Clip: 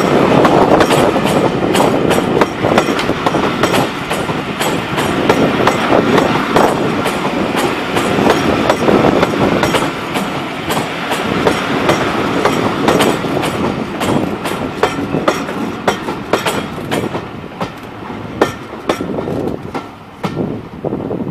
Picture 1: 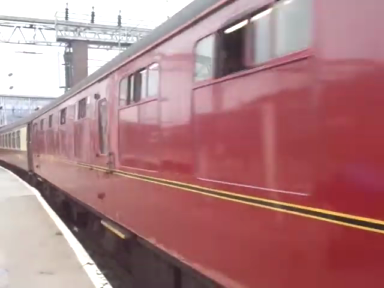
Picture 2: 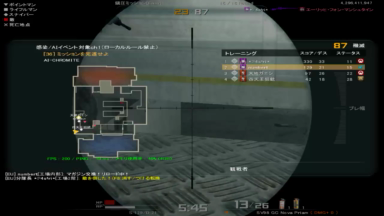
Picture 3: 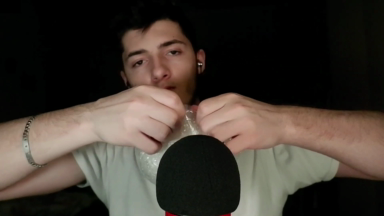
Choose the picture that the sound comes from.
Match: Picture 1